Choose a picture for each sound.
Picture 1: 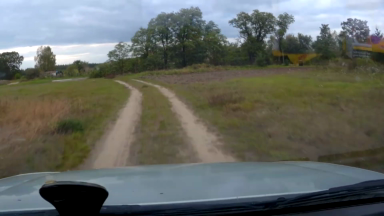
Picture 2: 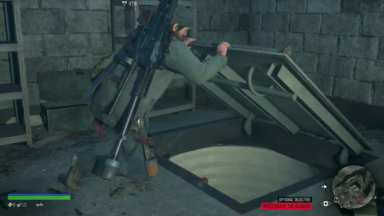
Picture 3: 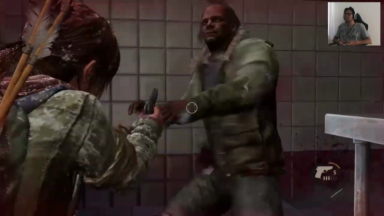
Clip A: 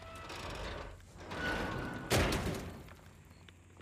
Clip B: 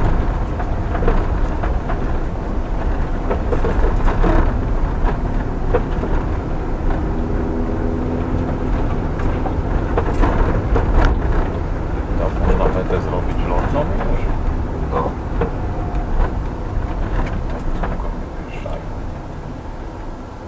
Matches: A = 2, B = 1